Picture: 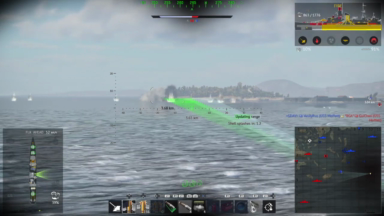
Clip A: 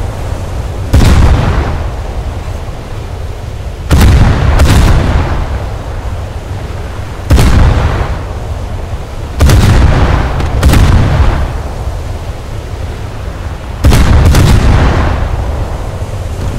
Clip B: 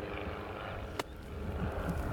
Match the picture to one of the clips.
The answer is A